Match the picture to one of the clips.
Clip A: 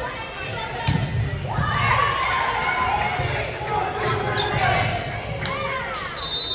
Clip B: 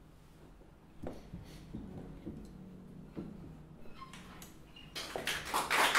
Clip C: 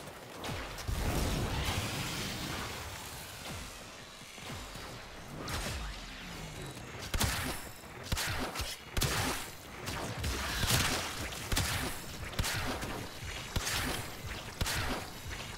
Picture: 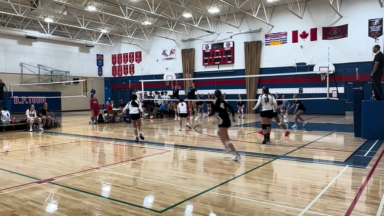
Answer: A